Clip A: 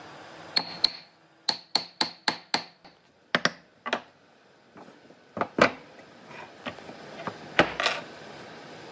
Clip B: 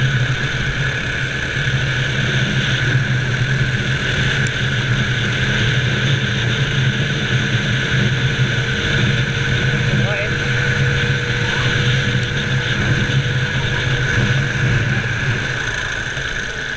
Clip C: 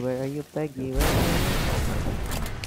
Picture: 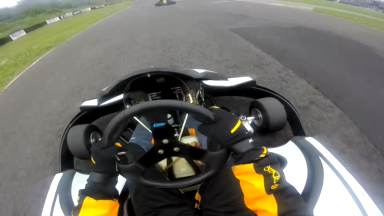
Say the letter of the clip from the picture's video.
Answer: B